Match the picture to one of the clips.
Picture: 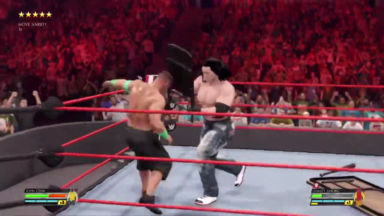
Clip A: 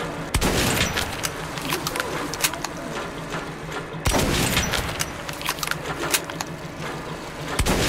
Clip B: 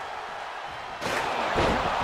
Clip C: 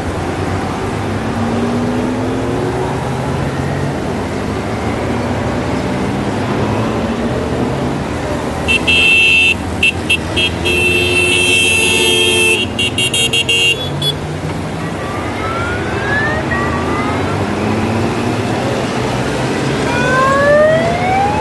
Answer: B